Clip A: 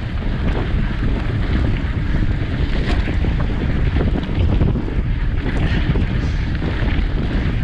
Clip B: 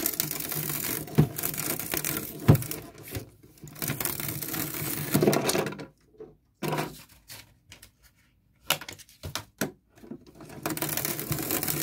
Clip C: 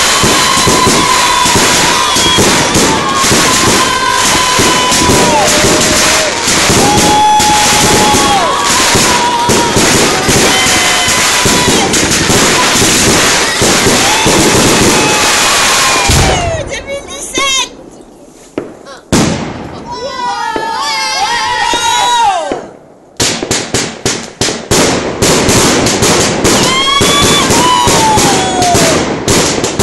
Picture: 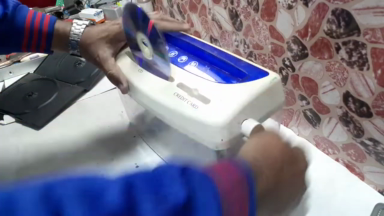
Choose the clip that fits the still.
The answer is B